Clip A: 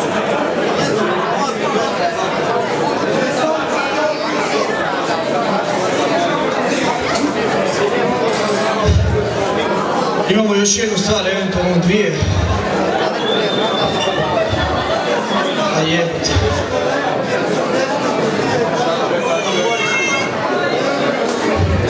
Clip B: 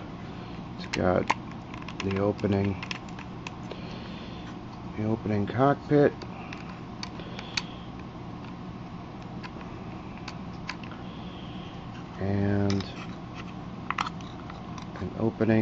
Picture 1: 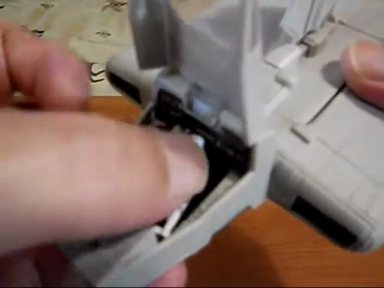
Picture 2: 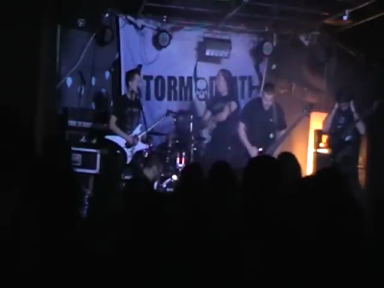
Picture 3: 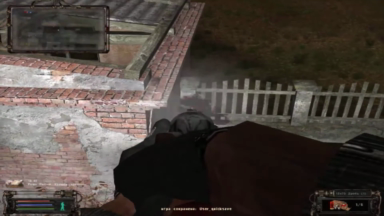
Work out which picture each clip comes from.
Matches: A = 2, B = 1